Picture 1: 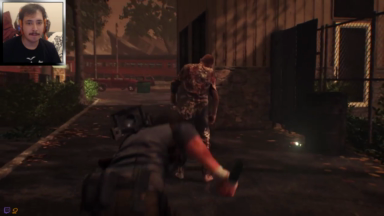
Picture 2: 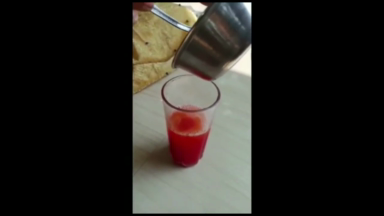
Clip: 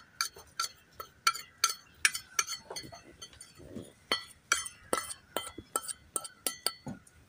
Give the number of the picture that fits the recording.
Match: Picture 2